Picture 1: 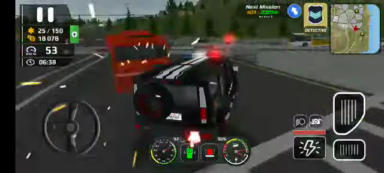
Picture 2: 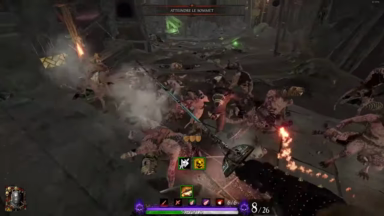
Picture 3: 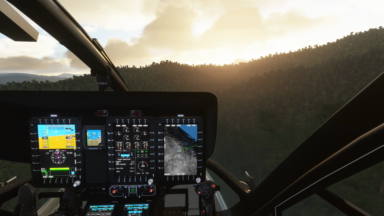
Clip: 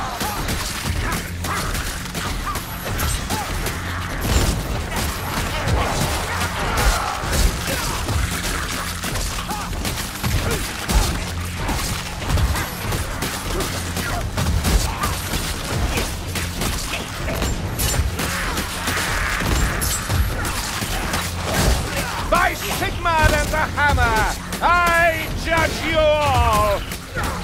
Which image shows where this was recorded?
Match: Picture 2